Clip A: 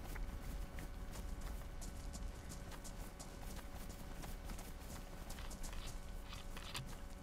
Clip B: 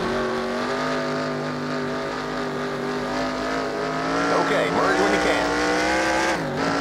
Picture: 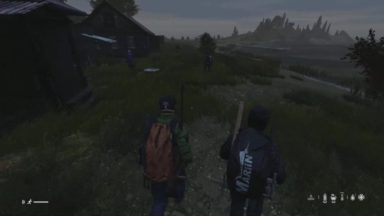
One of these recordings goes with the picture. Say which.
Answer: A